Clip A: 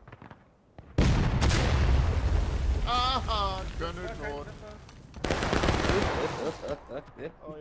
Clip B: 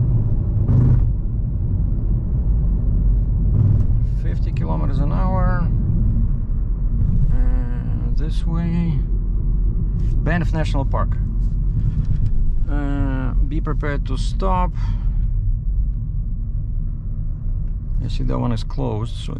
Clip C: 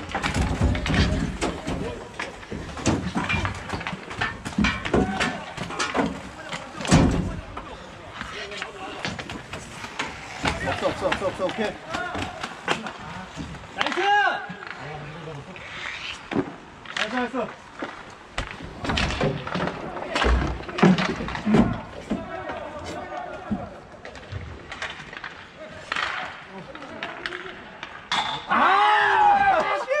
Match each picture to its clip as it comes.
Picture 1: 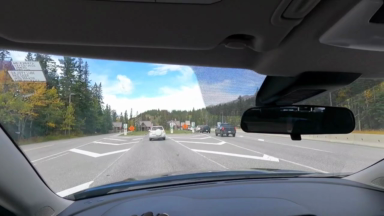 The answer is B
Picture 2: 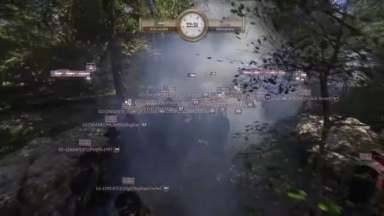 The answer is A